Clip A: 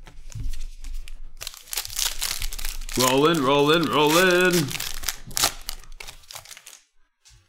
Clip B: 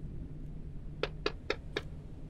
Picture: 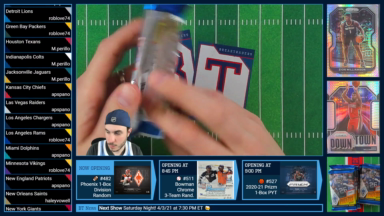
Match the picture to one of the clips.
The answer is A